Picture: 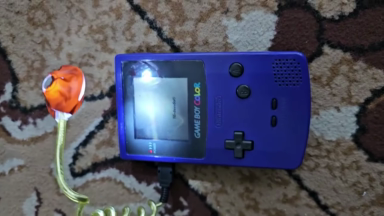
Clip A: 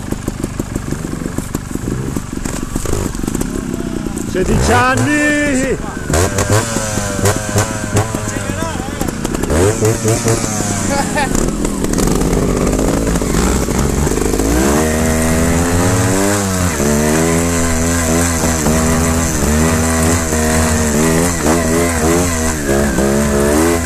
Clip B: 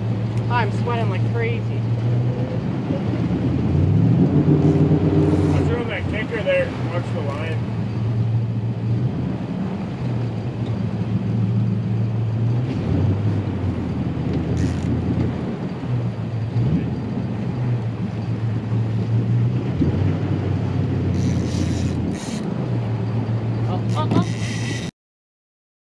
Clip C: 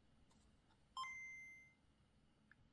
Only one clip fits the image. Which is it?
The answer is C